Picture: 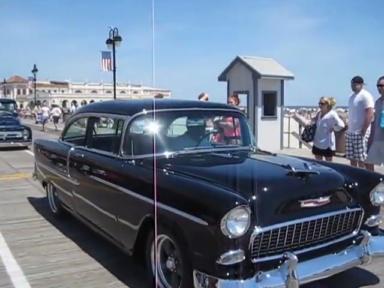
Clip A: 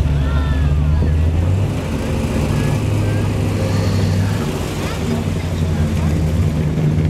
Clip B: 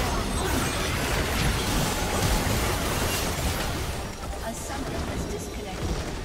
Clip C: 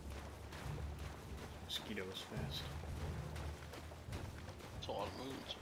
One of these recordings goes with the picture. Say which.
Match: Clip A